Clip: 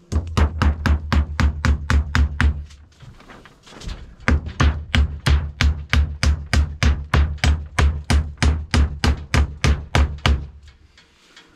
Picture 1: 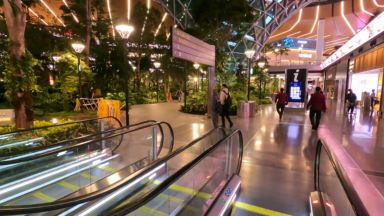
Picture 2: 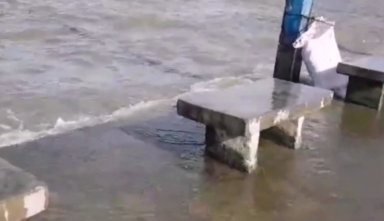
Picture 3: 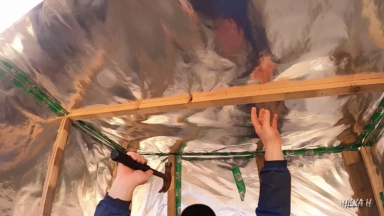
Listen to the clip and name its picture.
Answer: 3